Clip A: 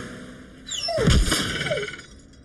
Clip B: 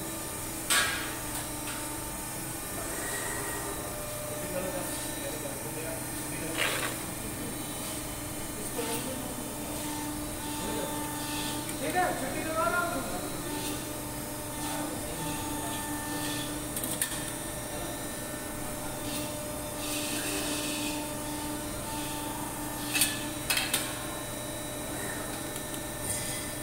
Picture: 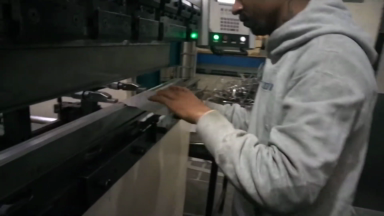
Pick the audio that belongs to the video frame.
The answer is B